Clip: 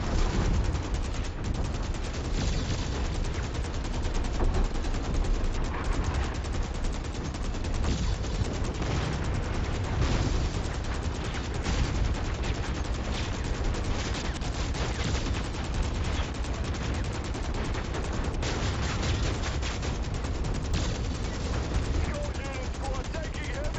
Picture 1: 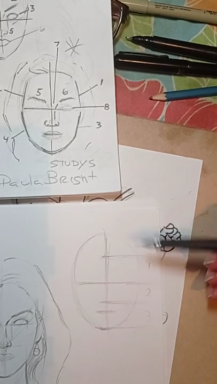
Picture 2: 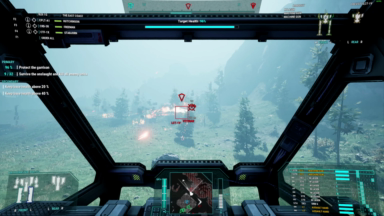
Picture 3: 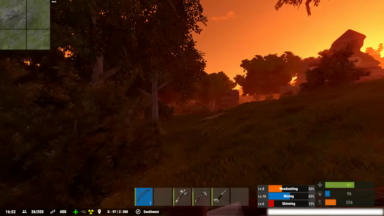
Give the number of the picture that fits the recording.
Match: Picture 2